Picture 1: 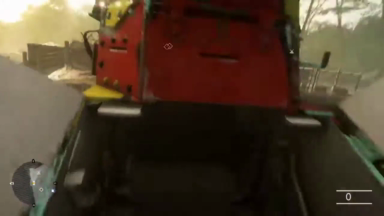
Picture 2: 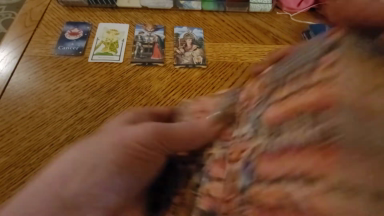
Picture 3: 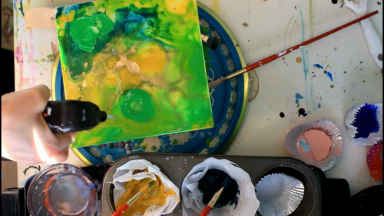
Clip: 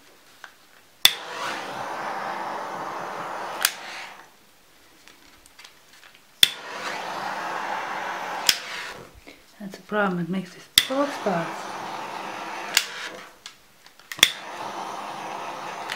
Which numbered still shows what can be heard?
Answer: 3